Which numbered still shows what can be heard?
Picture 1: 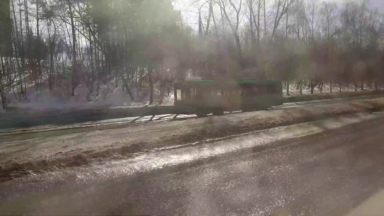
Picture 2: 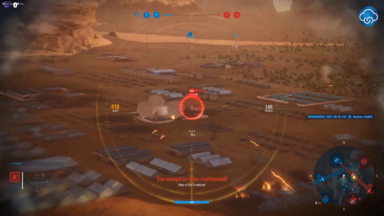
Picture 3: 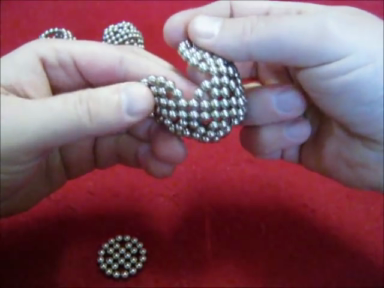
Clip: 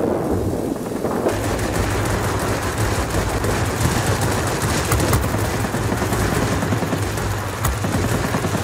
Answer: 2